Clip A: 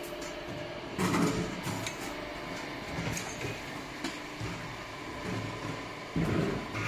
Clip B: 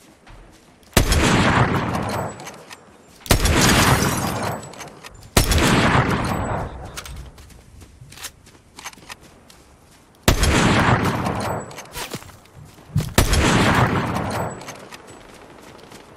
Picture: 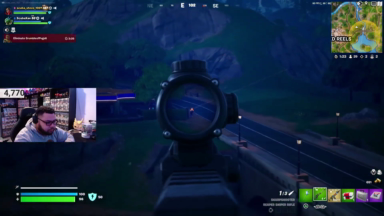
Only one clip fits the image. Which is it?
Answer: B